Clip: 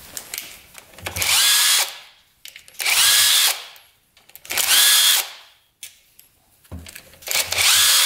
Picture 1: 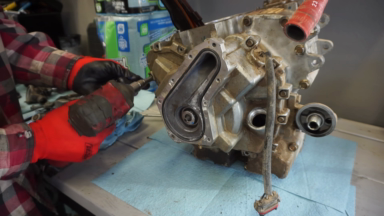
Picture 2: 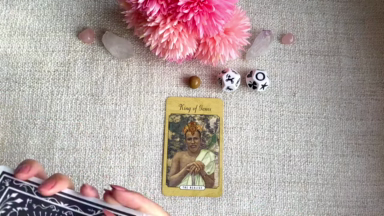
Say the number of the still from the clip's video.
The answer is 1